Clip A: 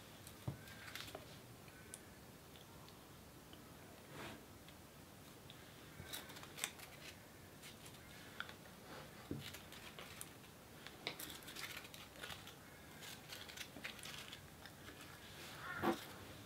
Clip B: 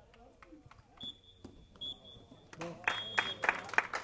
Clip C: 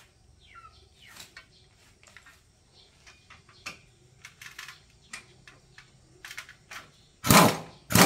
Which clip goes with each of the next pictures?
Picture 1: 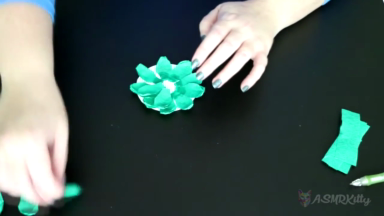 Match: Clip A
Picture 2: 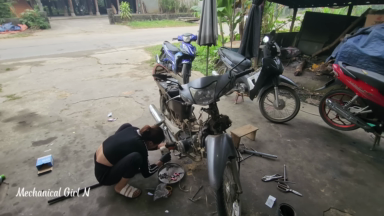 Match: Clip C